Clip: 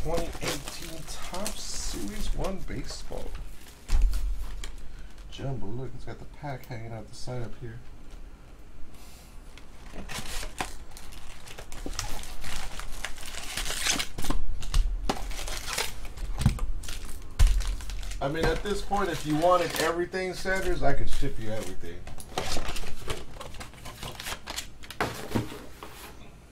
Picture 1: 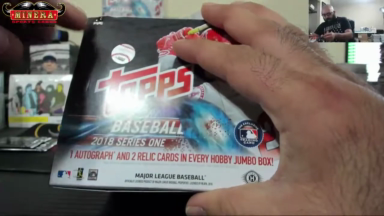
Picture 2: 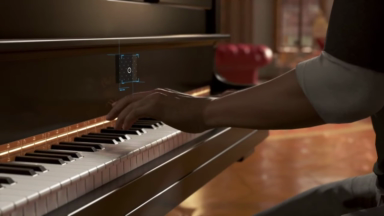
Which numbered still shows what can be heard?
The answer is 1